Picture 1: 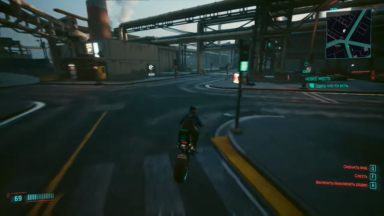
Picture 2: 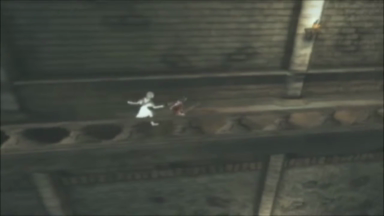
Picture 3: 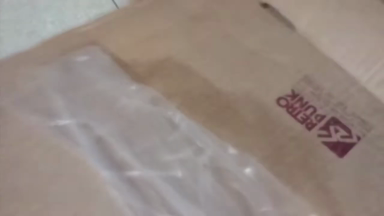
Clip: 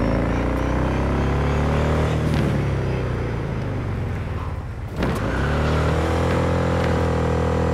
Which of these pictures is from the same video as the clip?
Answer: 1